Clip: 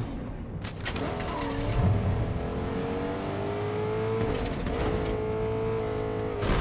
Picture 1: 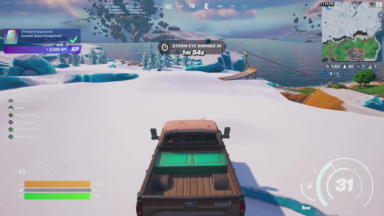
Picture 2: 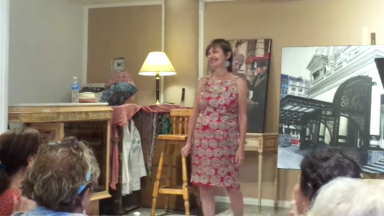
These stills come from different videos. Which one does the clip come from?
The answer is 1